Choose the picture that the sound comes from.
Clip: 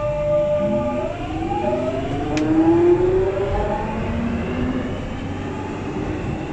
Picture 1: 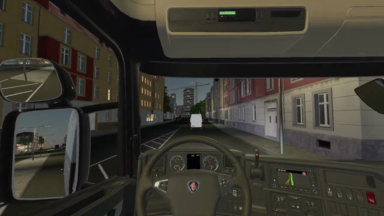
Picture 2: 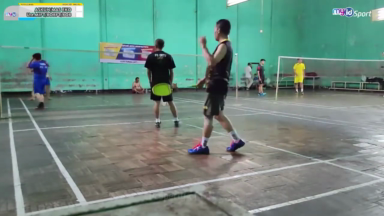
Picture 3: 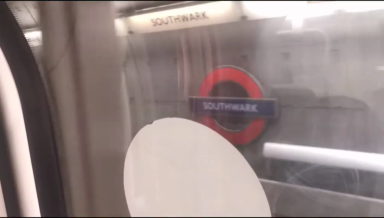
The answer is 3